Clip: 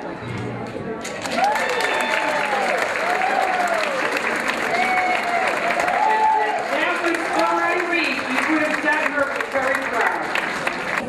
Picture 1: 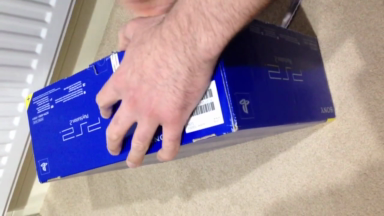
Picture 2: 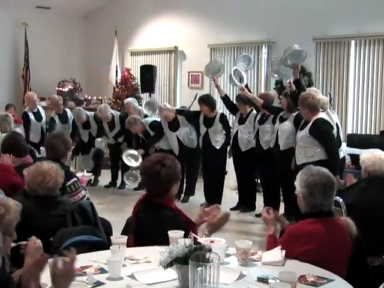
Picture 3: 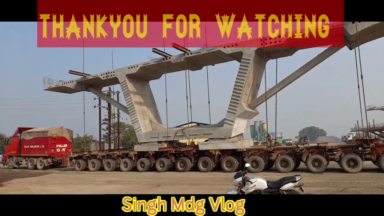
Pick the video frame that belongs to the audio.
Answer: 2